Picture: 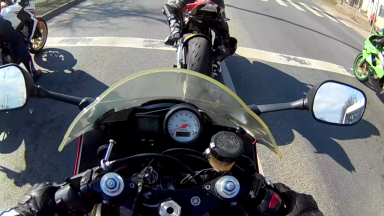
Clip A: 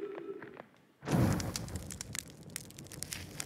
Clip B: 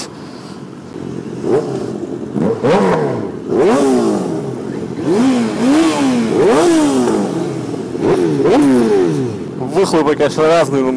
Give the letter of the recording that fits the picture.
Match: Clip B